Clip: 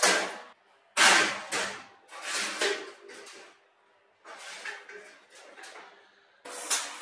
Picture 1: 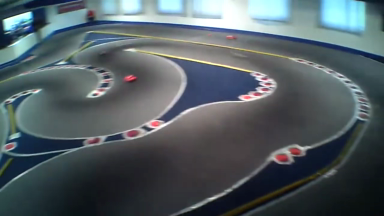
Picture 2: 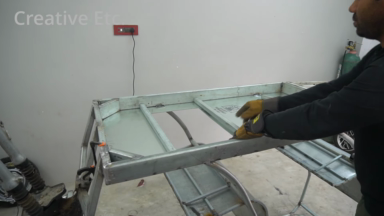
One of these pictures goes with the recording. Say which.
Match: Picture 2